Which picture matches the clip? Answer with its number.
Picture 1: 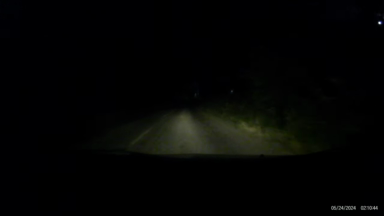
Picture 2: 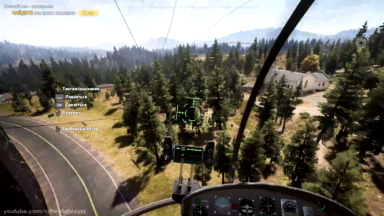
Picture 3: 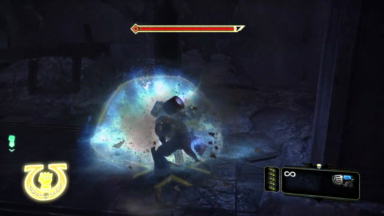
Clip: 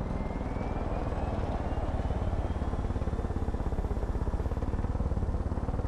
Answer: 2